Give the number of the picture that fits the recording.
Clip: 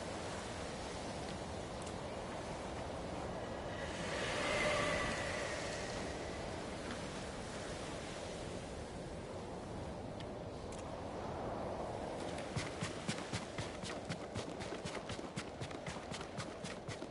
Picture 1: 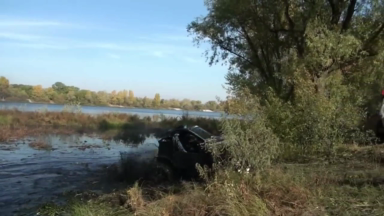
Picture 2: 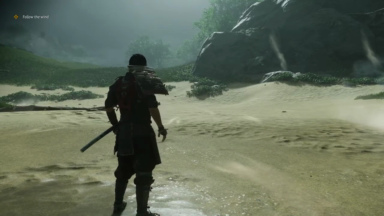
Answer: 2